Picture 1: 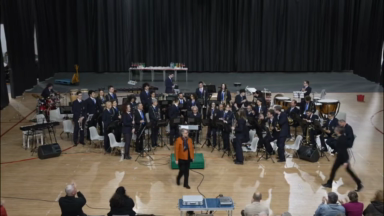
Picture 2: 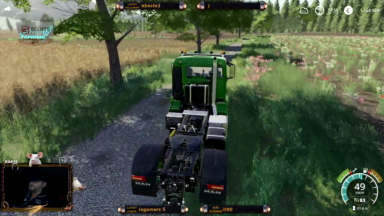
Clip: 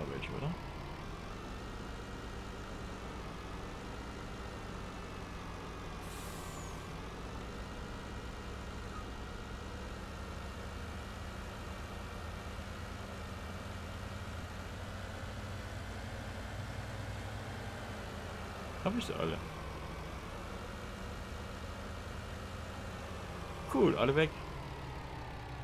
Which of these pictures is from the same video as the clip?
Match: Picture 2